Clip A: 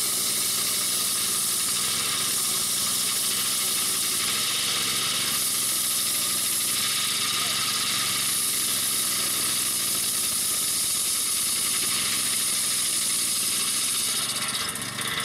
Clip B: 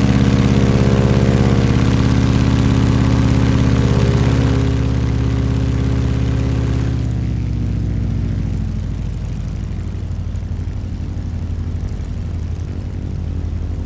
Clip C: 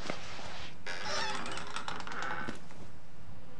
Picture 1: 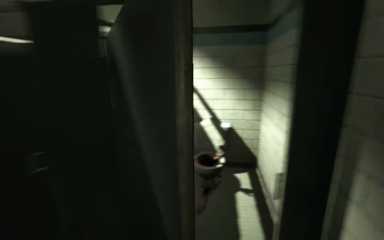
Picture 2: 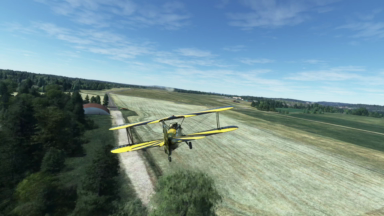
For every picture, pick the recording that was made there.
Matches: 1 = C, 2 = B